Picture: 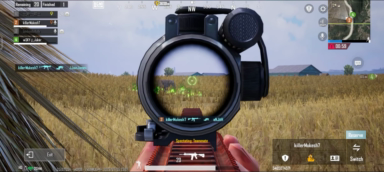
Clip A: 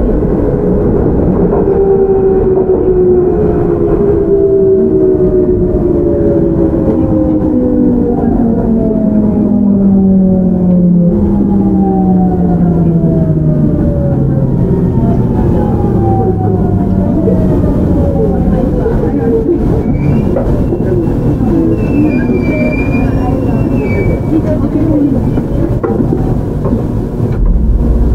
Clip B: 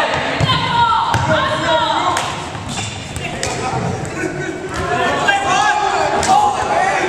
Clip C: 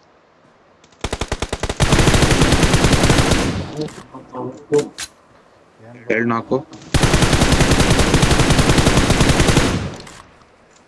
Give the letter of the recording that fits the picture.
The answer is C